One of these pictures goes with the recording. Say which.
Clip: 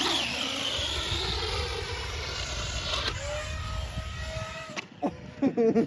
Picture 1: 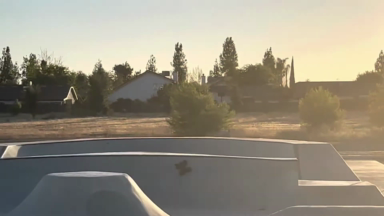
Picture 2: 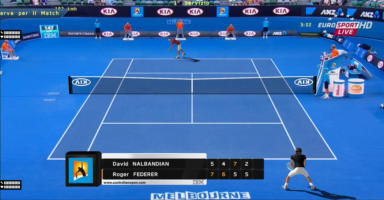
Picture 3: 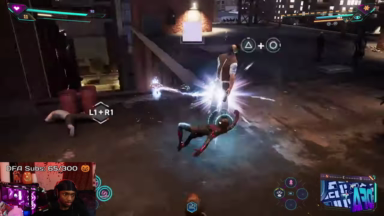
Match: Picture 1